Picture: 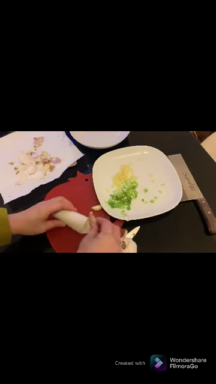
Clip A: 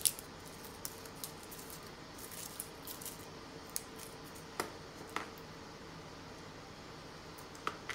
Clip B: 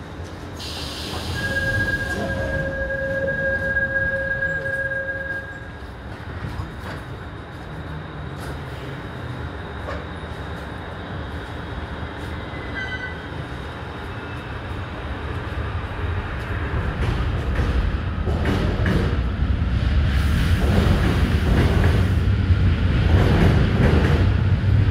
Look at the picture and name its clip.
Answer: A